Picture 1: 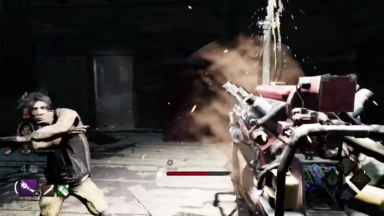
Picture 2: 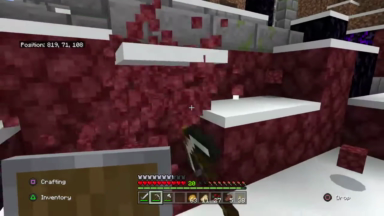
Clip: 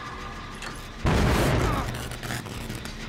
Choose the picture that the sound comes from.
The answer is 1